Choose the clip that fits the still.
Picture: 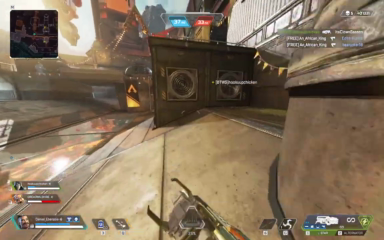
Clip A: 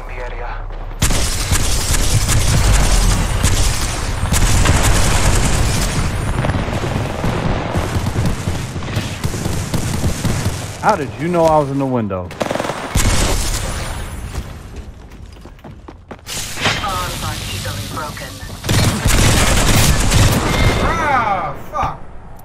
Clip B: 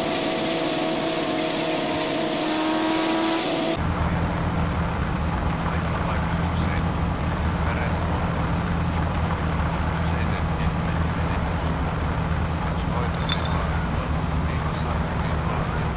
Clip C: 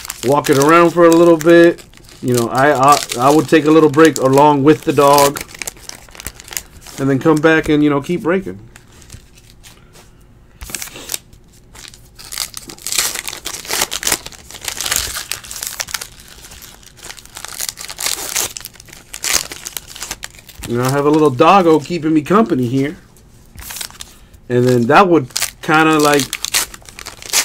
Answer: A